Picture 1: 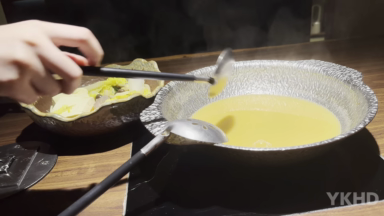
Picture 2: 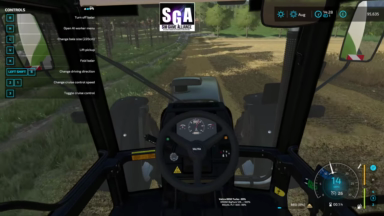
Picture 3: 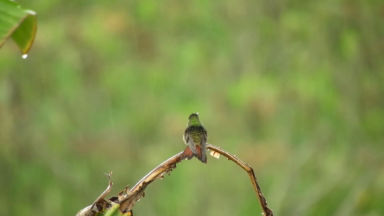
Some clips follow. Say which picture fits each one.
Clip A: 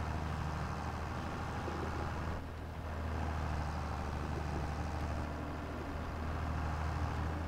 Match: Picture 2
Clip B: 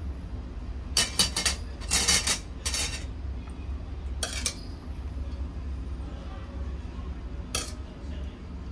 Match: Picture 1